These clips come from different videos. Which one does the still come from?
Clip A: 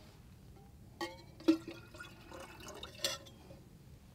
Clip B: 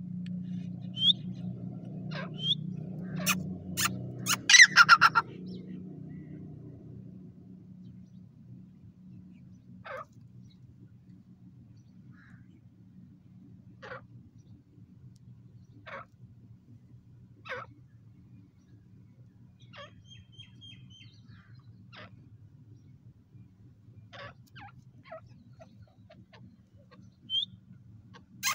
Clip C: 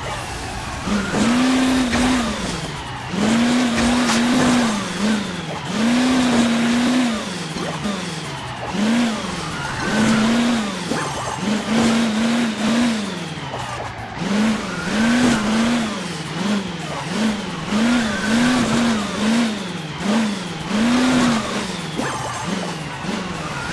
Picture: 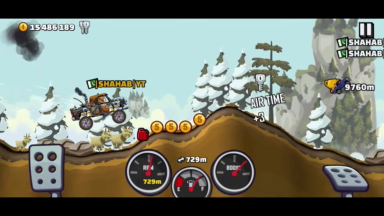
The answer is C